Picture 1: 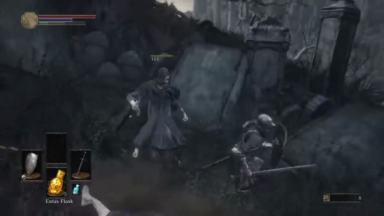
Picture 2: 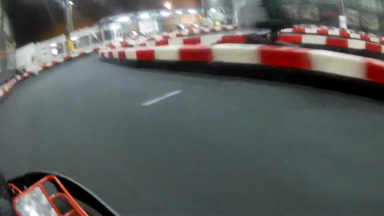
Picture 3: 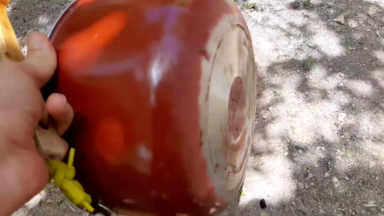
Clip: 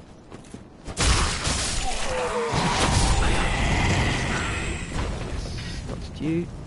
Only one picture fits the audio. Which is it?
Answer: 1